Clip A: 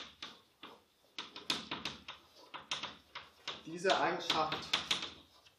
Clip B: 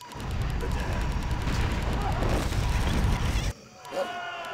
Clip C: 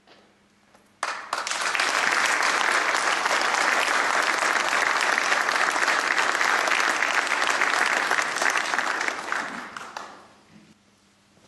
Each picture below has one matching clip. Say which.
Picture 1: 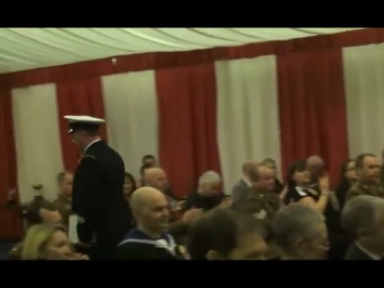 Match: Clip C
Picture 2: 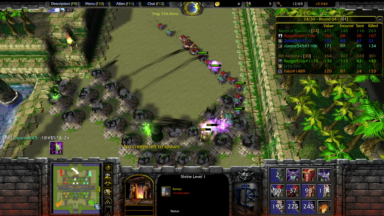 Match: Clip B